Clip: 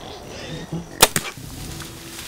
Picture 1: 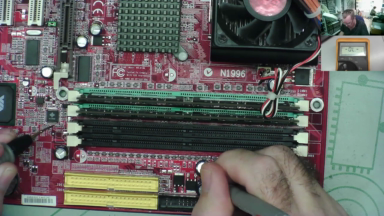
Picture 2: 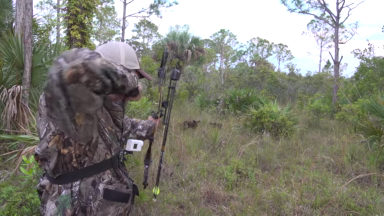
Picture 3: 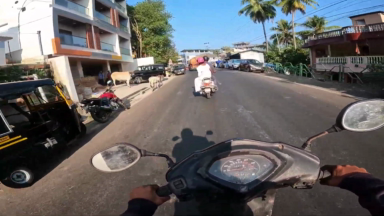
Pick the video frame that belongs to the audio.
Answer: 2